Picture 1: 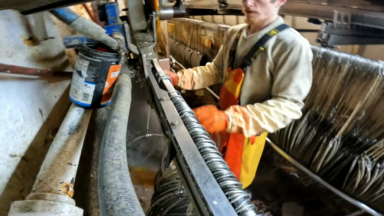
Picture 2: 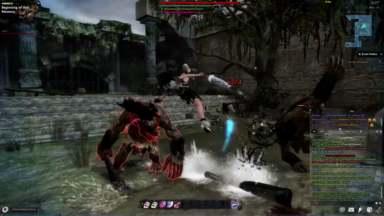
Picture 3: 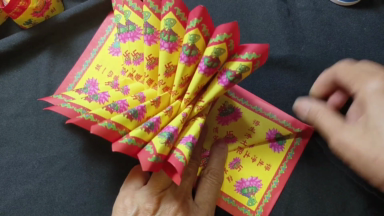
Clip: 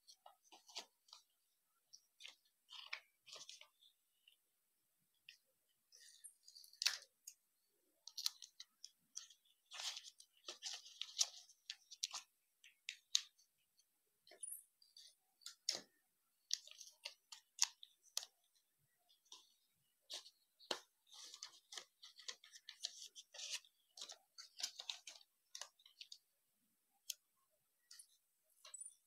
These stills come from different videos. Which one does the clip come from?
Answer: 3